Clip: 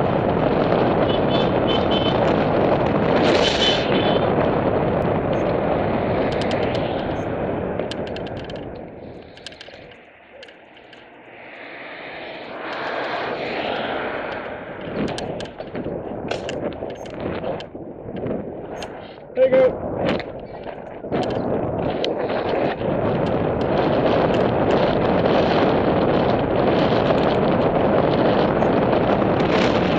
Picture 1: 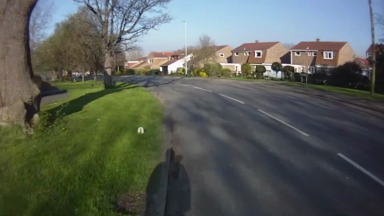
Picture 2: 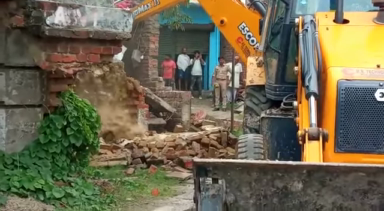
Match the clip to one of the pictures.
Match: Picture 1